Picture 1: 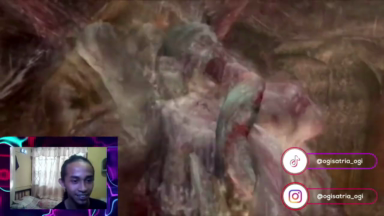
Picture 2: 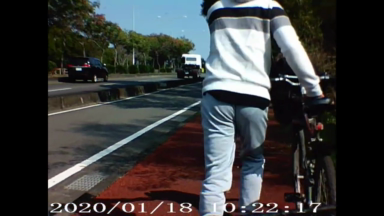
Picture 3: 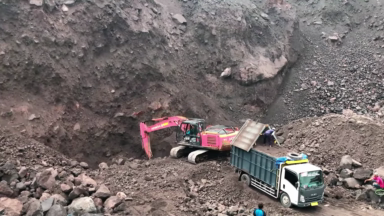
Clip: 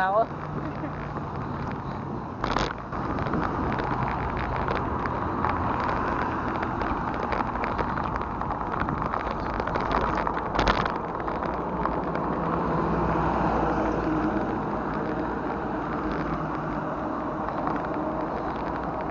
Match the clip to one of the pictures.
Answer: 2